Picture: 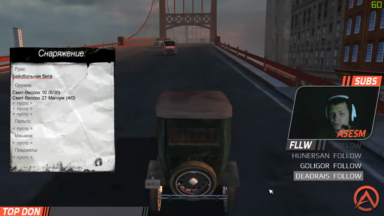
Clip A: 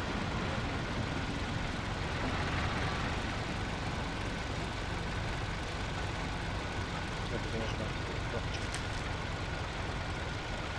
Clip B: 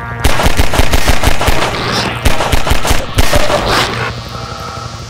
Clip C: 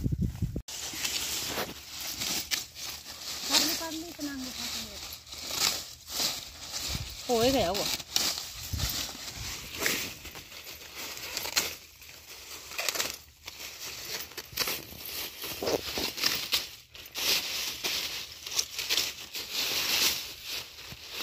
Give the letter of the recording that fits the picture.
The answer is A